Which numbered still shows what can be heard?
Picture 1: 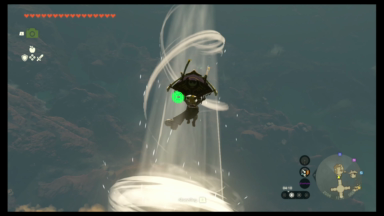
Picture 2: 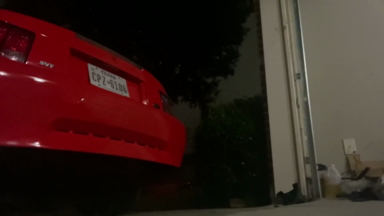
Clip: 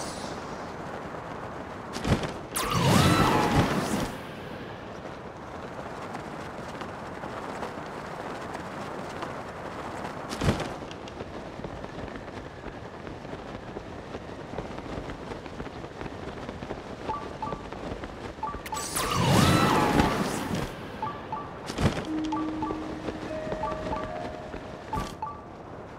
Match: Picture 1